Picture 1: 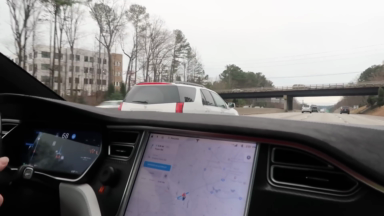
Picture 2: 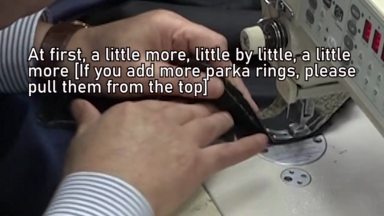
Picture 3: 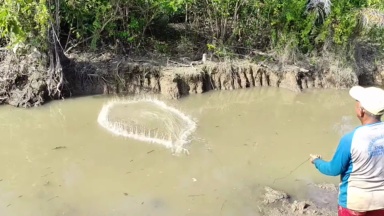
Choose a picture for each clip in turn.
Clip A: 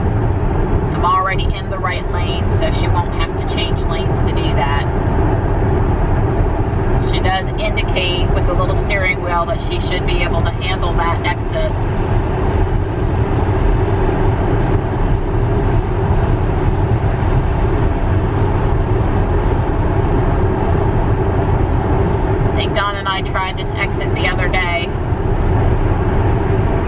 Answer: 1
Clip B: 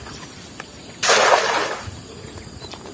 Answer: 3